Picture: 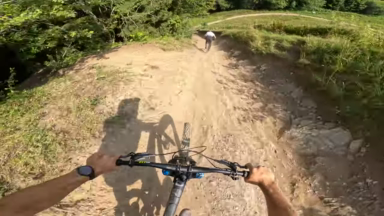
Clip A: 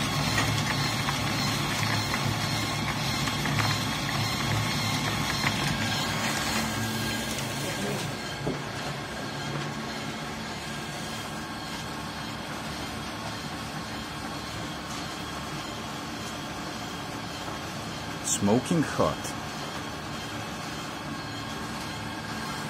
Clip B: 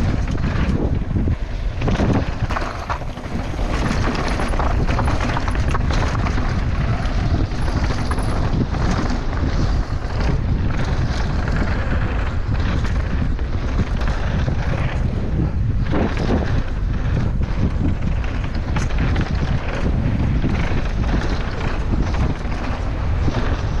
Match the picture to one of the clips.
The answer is B